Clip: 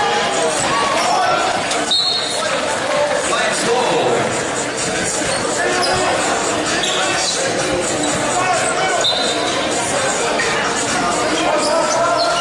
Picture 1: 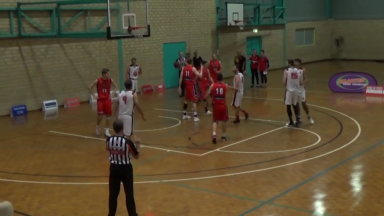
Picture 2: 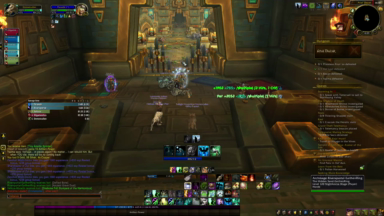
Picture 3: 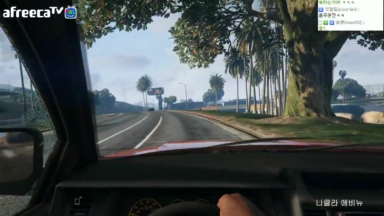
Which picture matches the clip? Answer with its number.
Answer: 1